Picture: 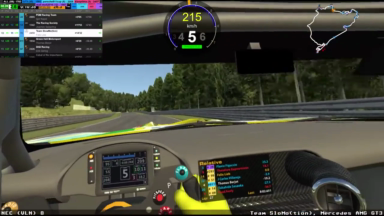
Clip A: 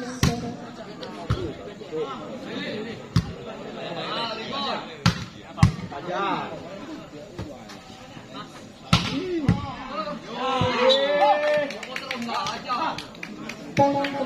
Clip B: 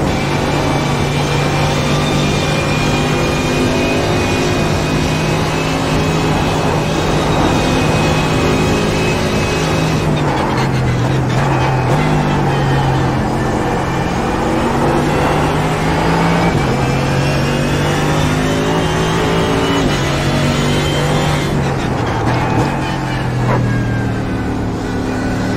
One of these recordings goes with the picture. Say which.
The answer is B